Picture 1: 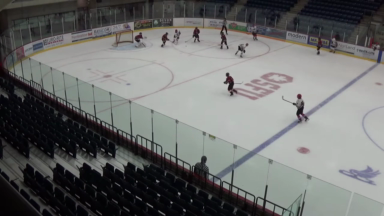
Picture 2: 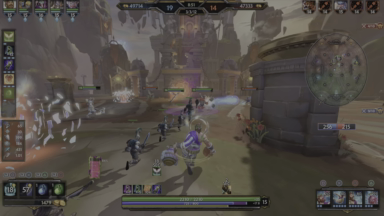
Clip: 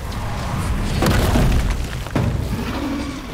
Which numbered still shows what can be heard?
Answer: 2